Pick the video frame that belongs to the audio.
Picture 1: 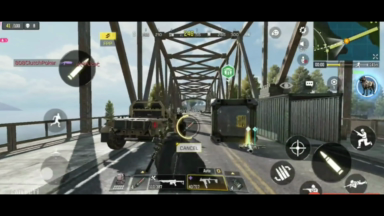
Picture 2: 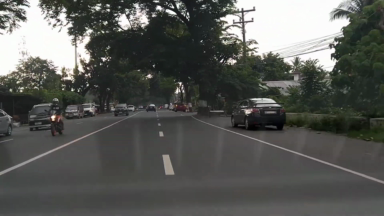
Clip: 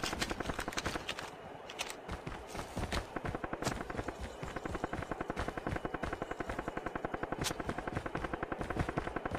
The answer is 1